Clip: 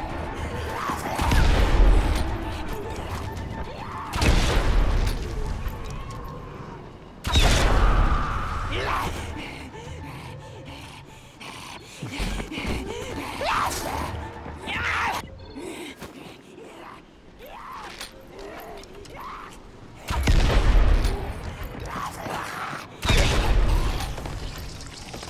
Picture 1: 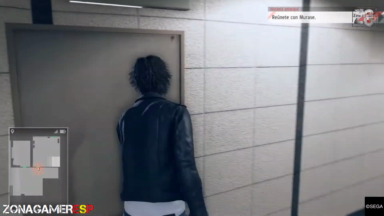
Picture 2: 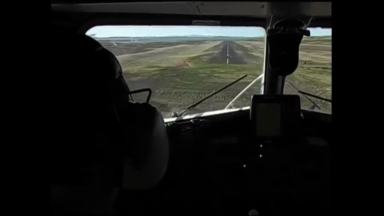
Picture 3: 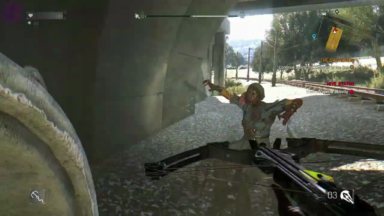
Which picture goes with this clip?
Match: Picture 3